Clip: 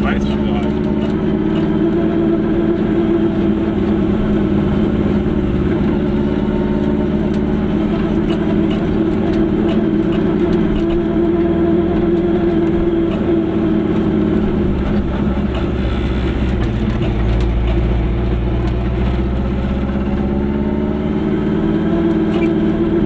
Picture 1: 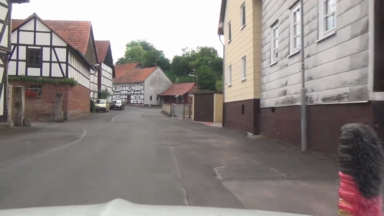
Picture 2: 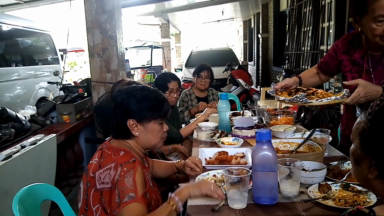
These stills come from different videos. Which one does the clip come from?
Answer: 1